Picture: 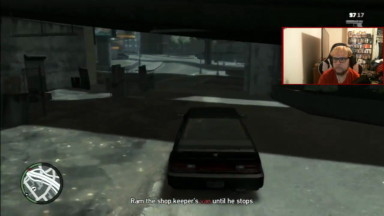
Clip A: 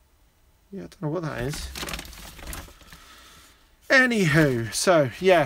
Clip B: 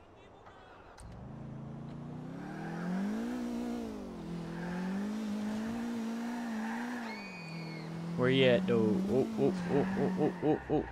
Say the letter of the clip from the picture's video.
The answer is B